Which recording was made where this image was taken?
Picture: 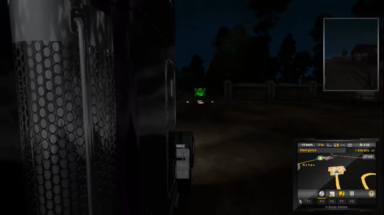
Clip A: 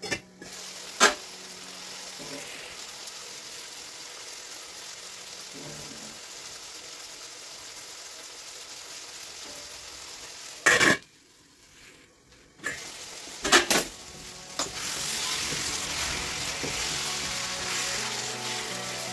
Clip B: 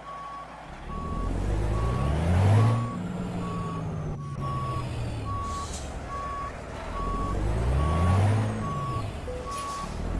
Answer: B